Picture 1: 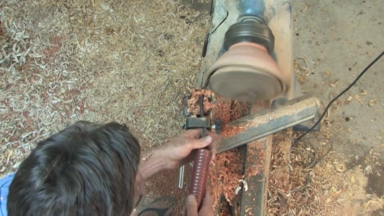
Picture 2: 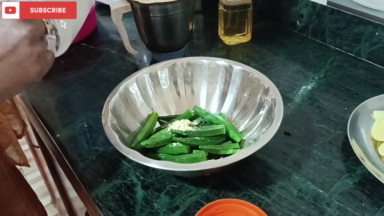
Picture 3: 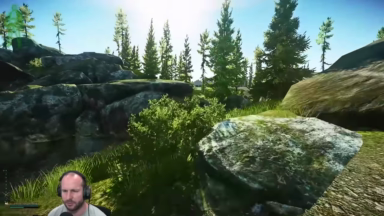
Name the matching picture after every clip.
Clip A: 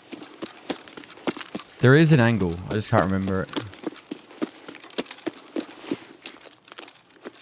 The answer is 3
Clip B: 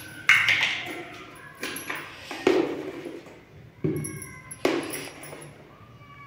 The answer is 2